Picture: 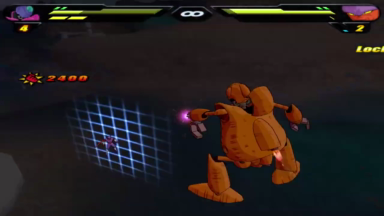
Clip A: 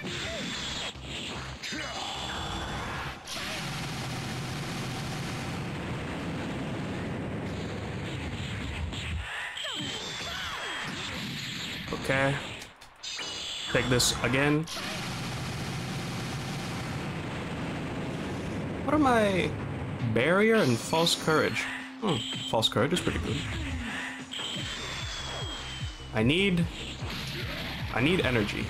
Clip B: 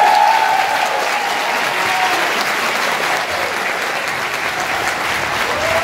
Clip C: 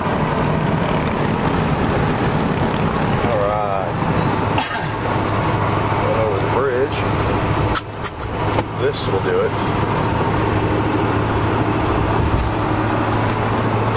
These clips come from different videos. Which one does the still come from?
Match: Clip A